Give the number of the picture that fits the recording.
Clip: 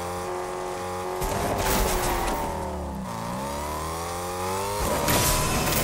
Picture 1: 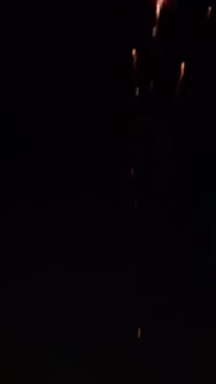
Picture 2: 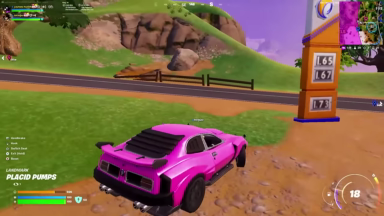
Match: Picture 2